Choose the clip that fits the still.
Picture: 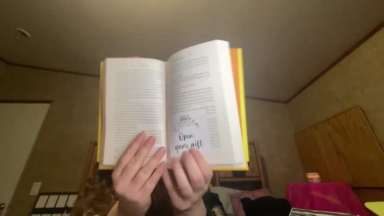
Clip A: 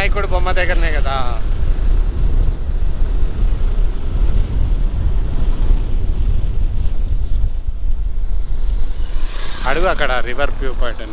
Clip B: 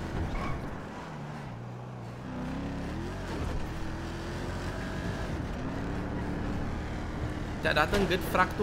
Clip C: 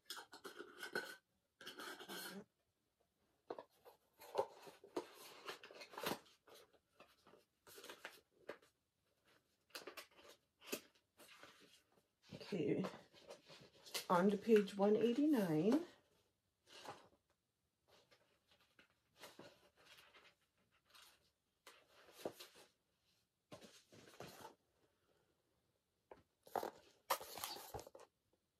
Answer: C